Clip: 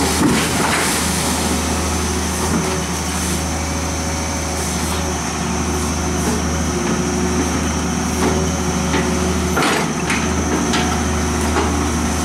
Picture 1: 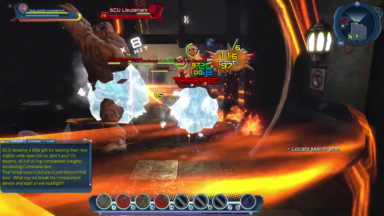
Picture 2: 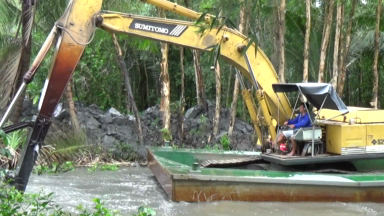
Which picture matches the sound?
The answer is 2